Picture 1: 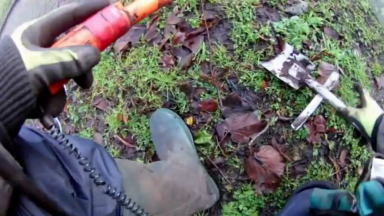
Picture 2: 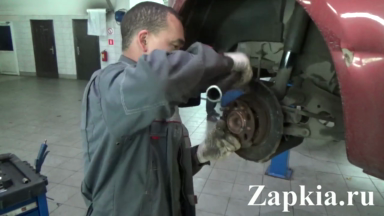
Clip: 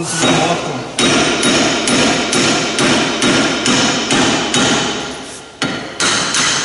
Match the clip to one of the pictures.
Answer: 2